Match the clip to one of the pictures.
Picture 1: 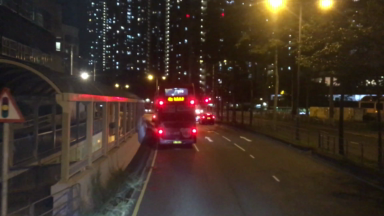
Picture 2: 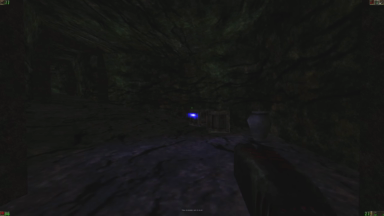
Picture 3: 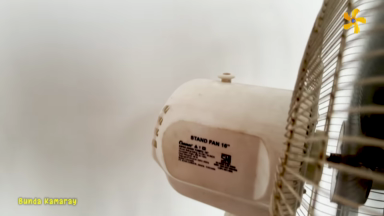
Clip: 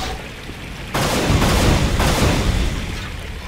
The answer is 2